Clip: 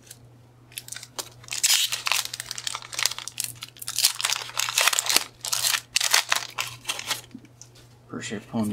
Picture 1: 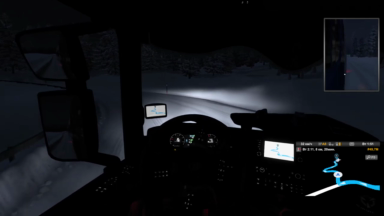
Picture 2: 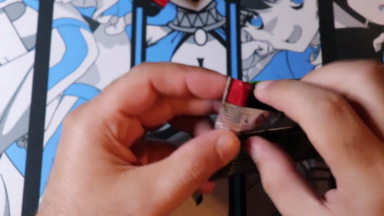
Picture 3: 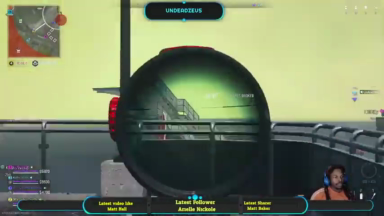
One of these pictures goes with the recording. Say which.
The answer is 2